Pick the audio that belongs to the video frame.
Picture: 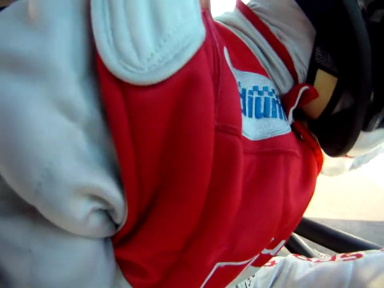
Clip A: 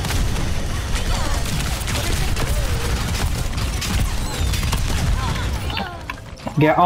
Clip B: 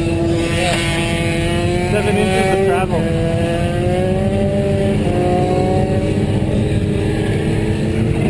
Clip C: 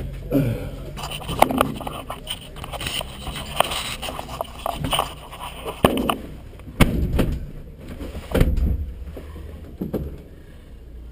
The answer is C